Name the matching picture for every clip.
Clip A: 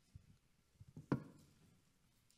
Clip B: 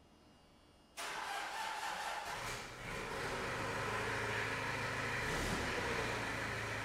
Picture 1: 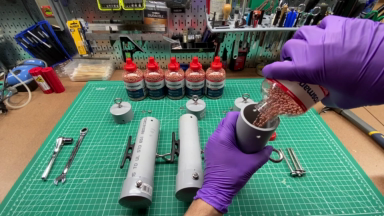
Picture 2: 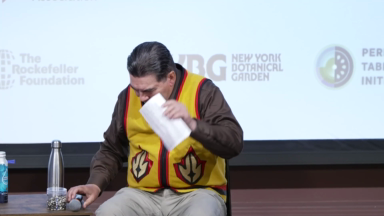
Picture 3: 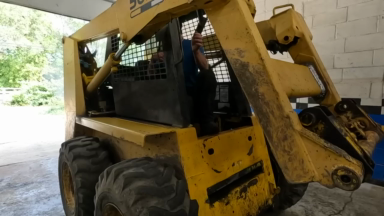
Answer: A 2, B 3